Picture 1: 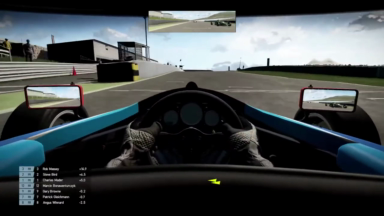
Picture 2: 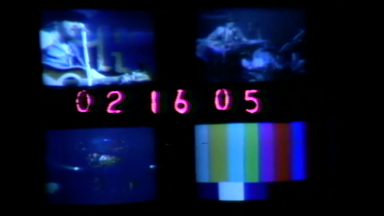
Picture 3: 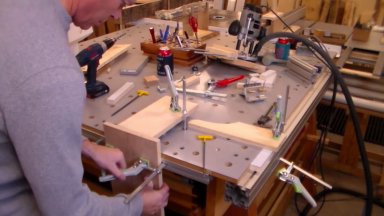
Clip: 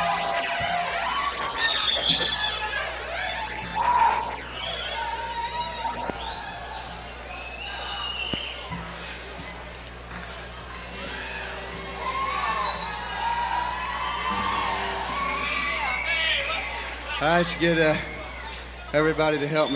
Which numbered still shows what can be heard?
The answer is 2